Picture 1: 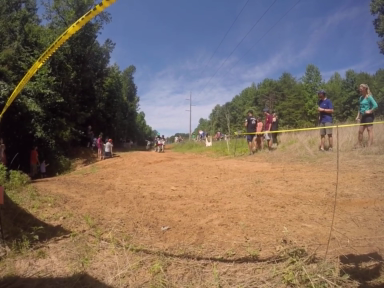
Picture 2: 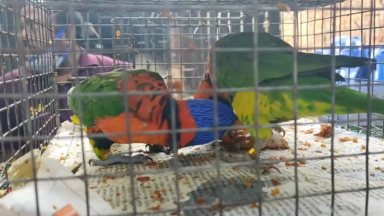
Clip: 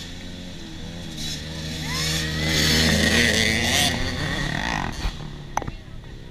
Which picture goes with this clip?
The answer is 1